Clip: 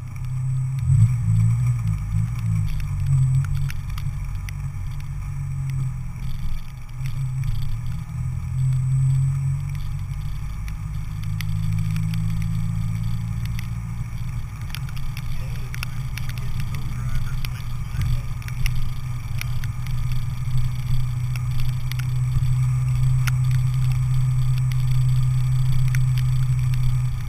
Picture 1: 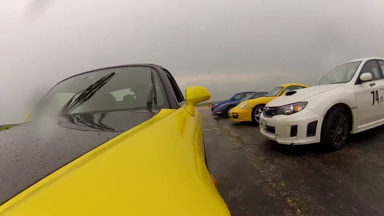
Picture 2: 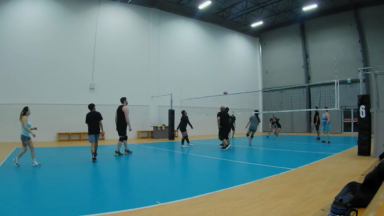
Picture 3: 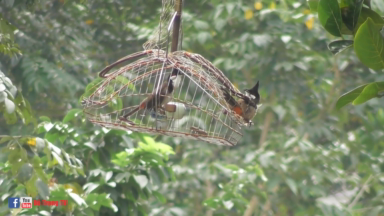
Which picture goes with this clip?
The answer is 1